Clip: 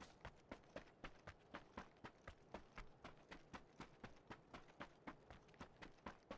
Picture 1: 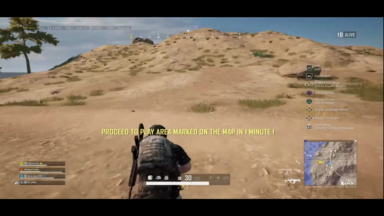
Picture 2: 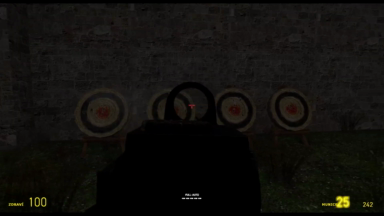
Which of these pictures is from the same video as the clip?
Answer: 1